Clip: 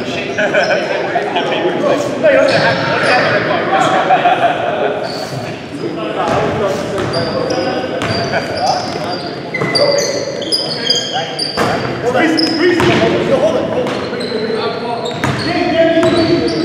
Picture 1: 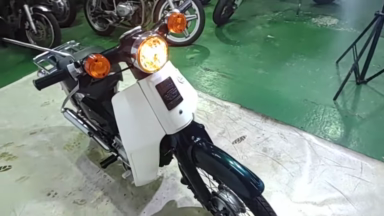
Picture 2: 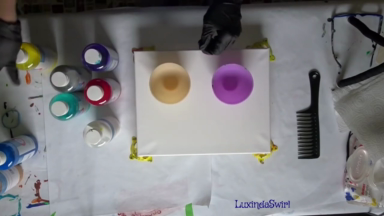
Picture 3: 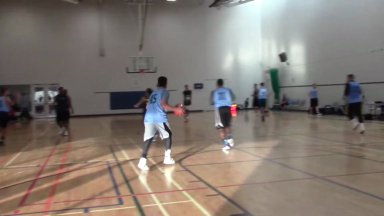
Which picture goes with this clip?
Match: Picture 3